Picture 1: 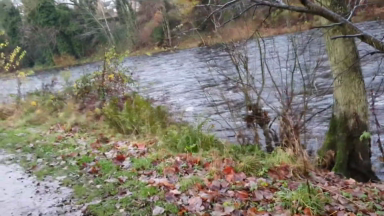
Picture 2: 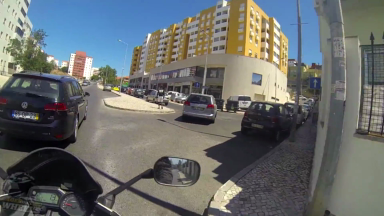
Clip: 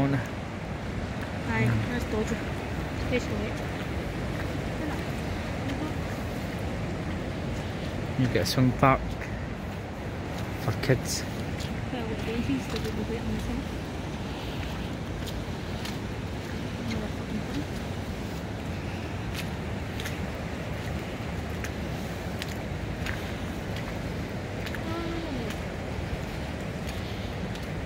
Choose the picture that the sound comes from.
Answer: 1